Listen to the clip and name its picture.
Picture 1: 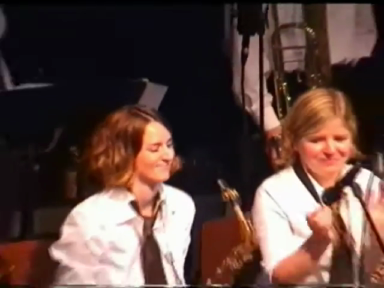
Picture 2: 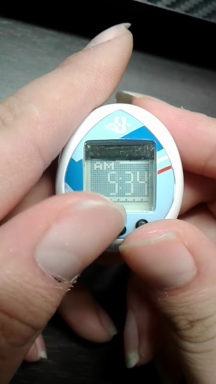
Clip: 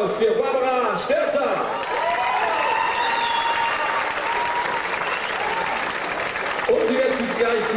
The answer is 1